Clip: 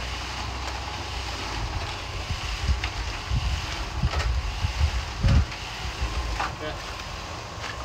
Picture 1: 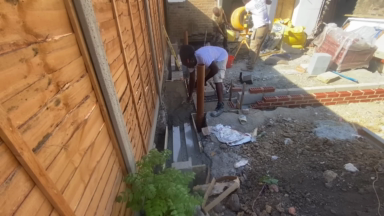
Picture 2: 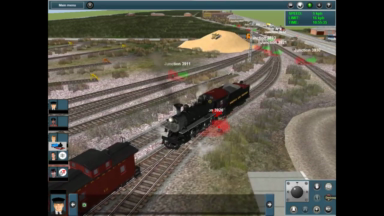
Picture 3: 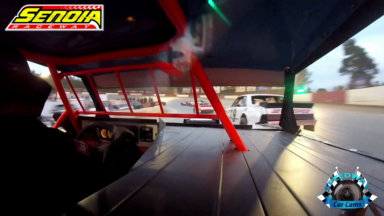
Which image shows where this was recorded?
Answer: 1